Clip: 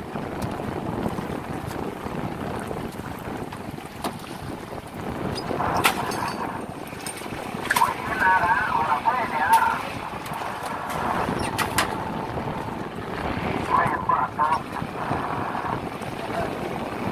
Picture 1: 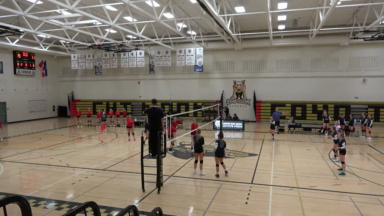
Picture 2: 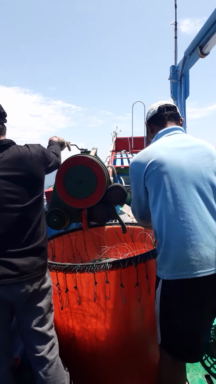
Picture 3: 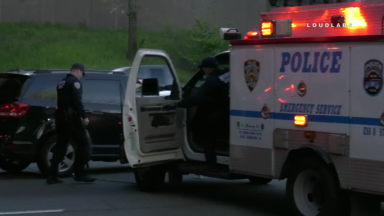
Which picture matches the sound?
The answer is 2